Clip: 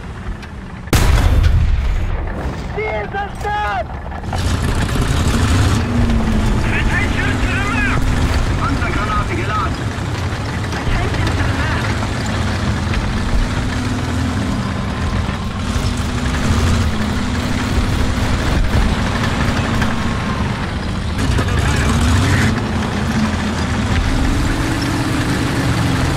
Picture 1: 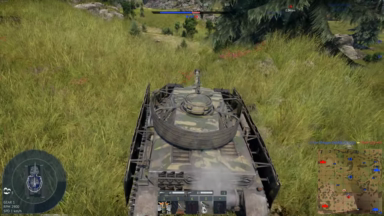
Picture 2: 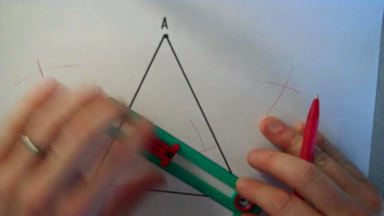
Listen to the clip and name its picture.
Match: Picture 1